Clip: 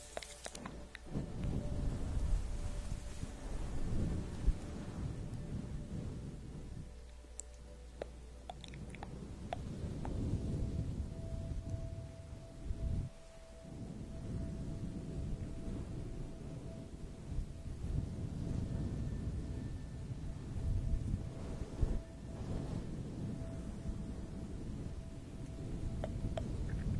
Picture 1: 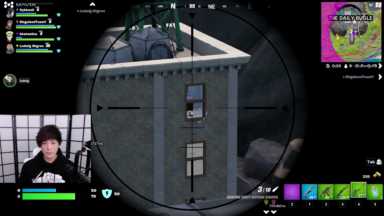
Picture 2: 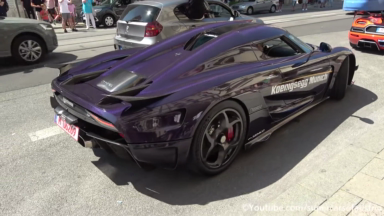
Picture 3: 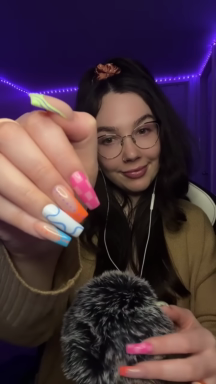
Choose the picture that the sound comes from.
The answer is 3